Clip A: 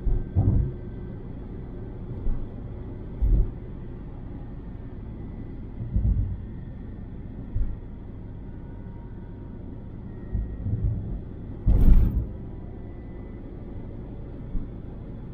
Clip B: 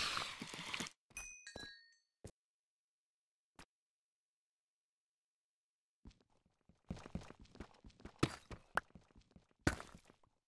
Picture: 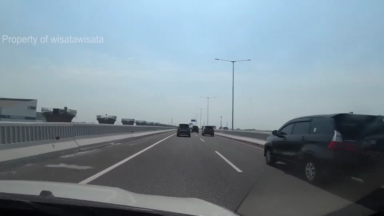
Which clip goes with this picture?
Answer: A